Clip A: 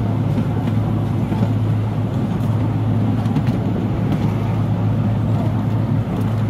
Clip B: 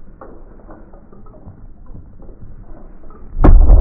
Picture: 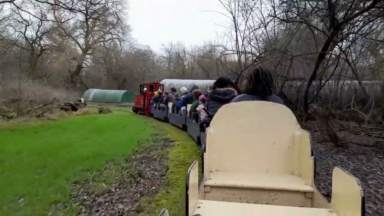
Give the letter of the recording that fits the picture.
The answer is A